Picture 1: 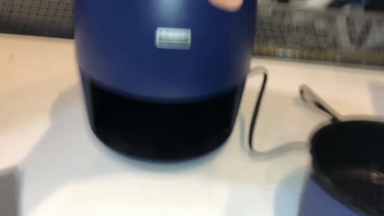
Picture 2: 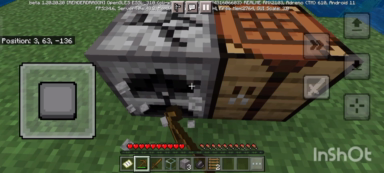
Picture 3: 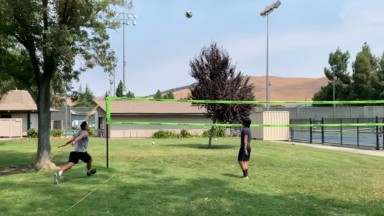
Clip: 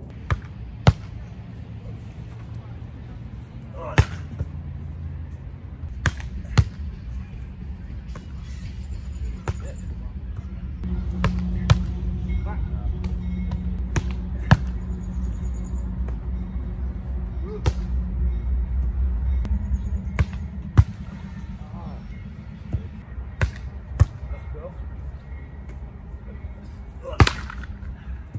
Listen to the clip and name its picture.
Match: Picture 3